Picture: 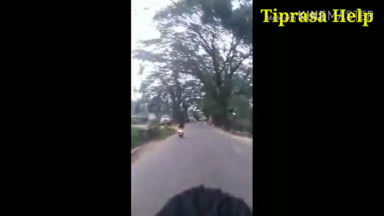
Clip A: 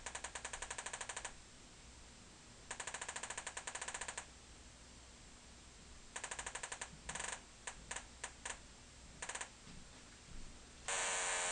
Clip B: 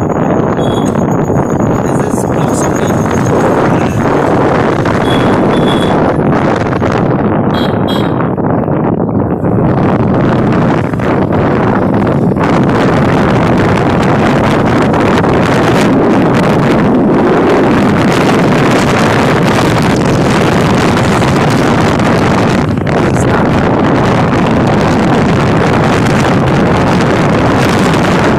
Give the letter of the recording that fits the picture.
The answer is B